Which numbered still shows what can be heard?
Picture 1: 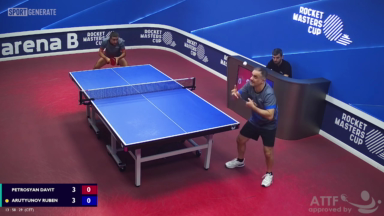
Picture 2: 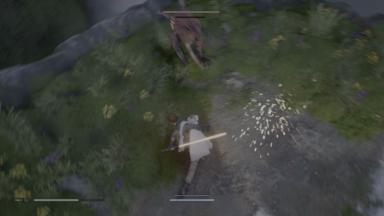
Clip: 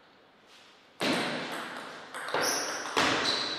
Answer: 1